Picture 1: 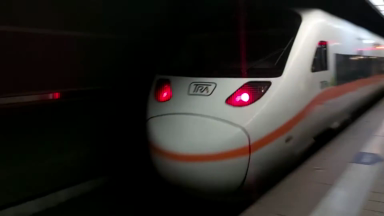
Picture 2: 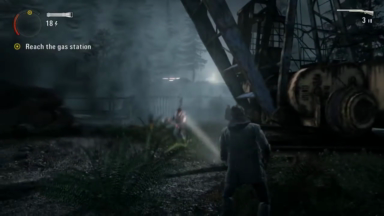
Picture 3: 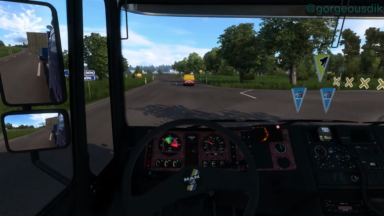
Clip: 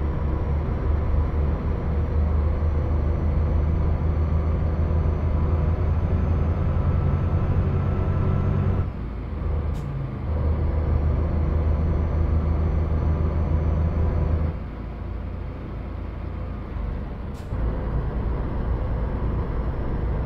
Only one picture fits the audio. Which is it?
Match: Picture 3